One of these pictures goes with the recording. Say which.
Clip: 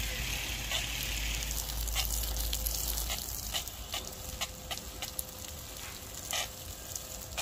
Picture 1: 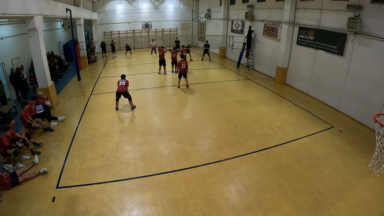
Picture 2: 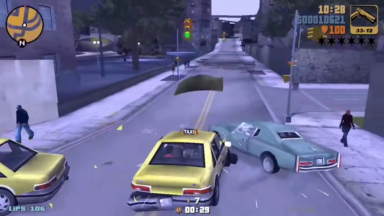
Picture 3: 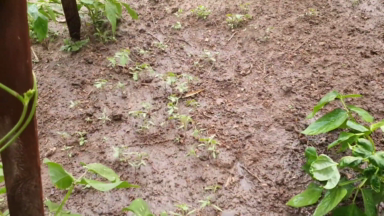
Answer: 3